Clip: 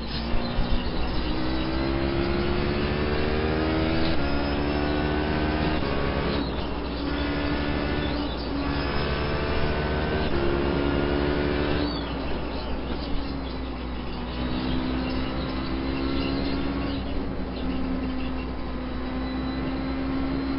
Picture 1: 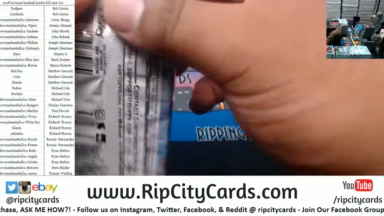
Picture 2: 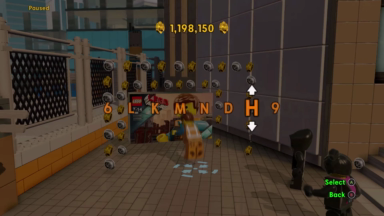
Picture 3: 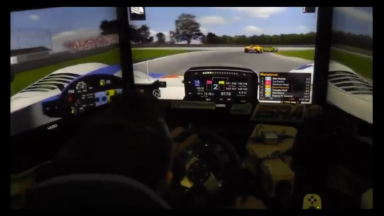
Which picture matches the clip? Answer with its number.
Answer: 3